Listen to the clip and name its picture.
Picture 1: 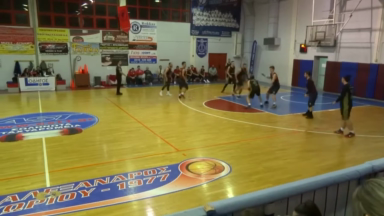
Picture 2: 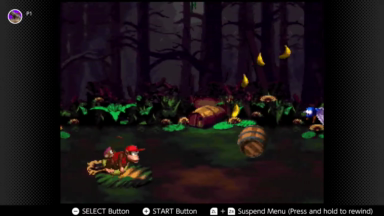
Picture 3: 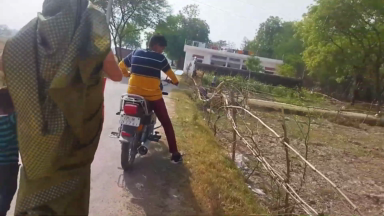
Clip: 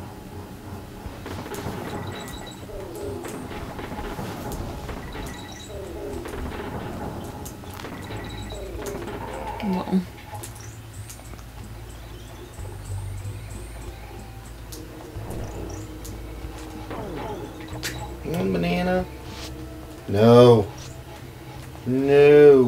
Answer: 2